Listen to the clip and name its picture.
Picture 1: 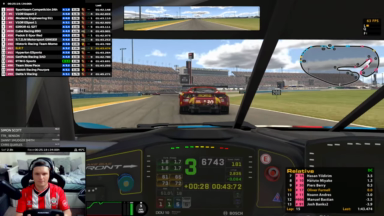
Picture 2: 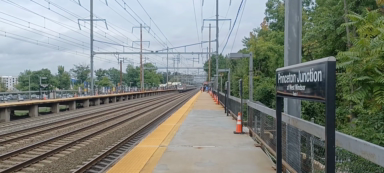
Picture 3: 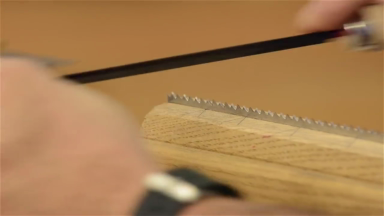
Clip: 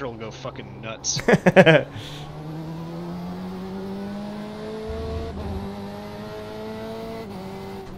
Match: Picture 1